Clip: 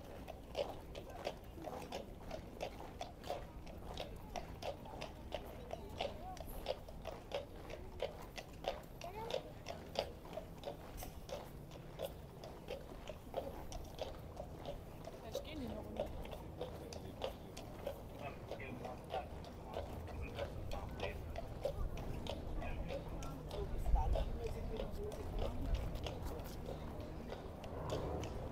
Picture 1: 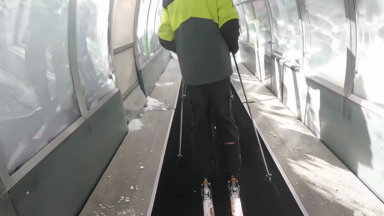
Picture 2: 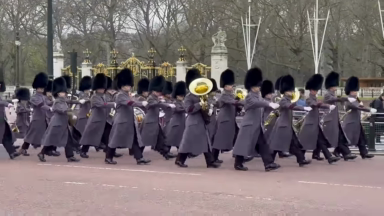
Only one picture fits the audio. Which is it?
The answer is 2